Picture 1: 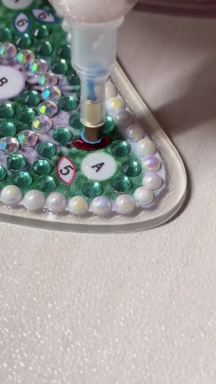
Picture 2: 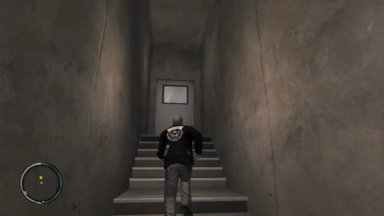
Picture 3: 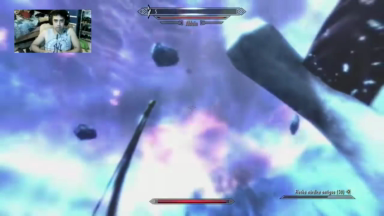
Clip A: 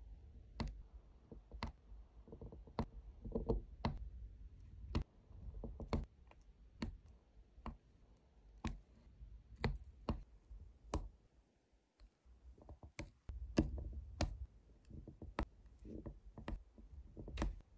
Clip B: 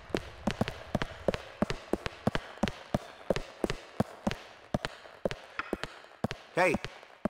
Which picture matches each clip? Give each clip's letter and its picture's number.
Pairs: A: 1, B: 2